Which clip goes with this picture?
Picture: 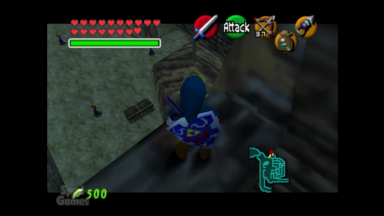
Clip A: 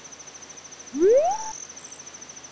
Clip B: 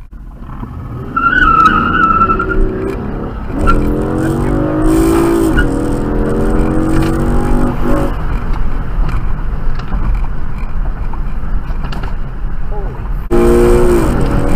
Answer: A